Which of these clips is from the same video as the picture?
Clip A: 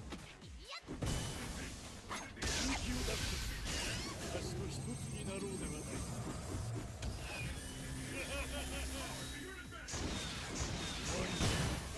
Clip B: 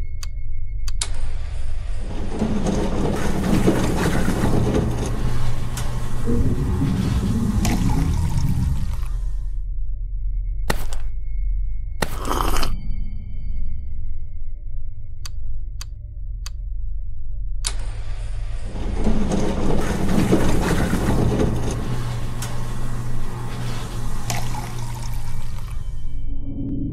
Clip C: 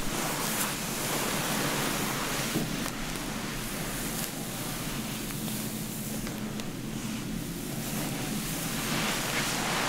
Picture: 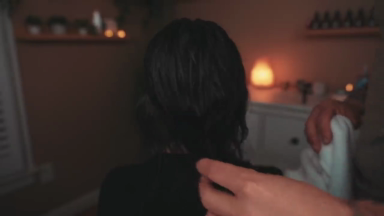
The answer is C